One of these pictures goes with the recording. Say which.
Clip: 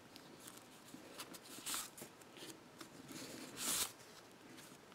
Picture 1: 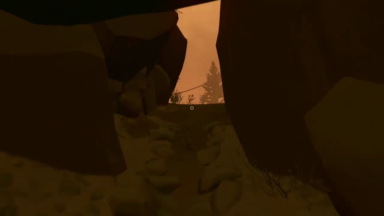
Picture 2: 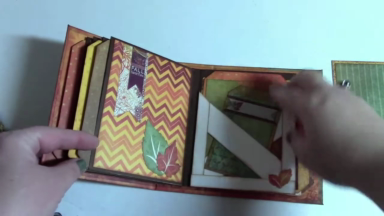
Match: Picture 2